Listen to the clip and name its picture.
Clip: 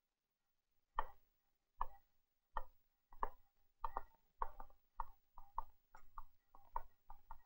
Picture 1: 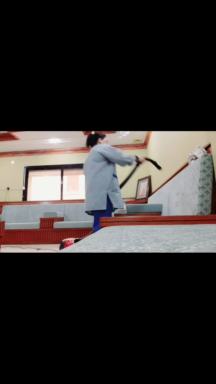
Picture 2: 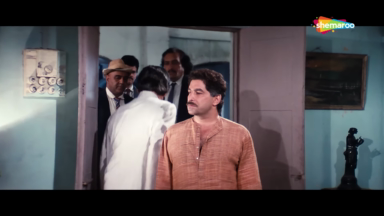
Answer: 2